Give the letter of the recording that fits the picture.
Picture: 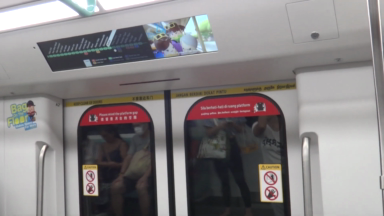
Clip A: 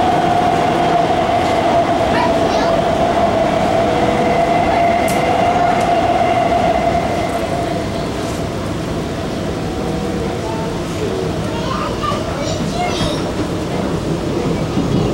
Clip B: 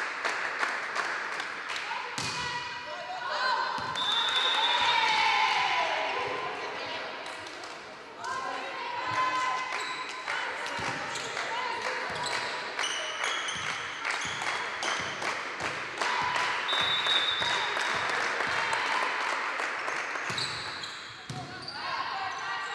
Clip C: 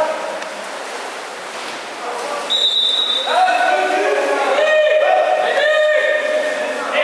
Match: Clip A